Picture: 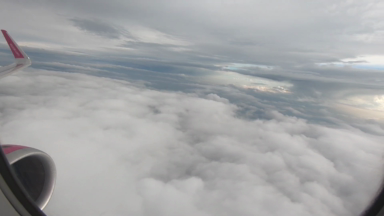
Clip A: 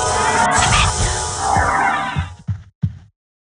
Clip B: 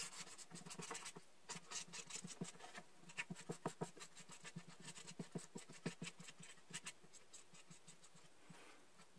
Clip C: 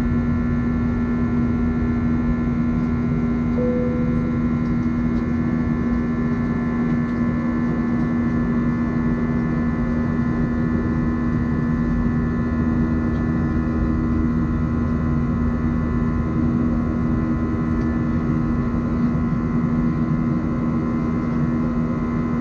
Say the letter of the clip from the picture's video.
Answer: C